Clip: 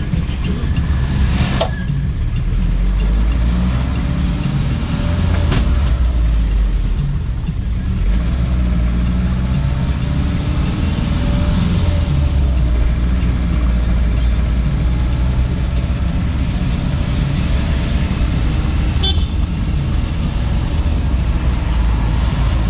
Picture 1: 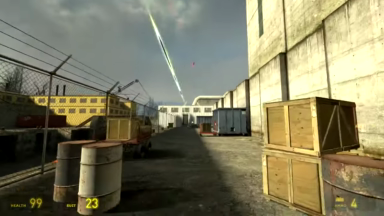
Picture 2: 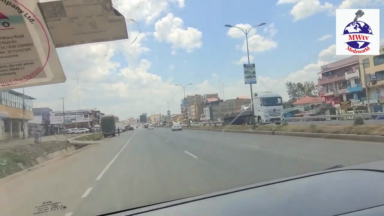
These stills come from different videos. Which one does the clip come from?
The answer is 2